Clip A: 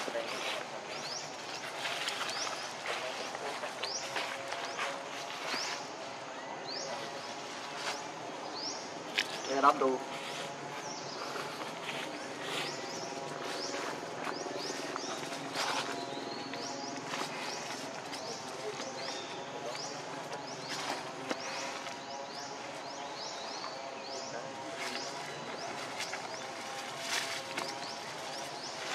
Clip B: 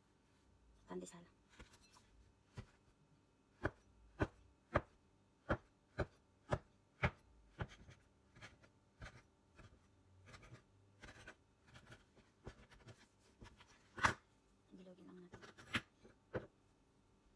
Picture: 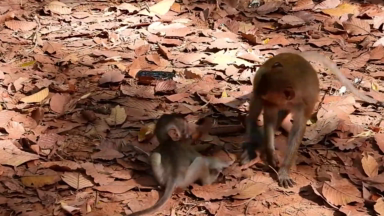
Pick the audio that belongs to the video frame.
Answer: A